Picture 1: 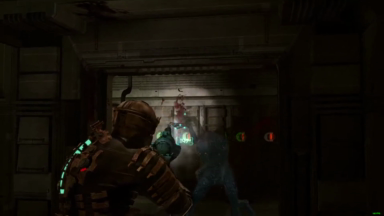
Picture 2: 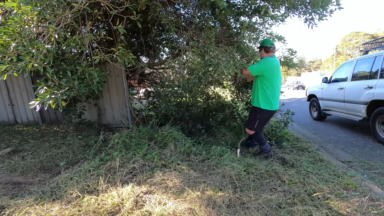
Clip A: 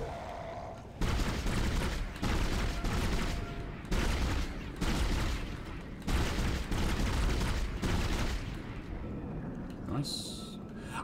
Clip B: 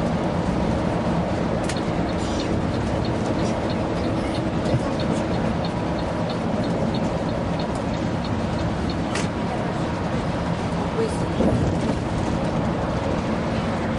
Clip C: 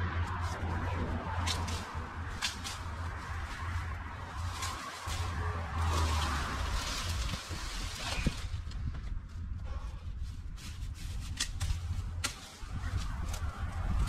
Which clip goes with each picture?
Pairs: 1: A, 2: C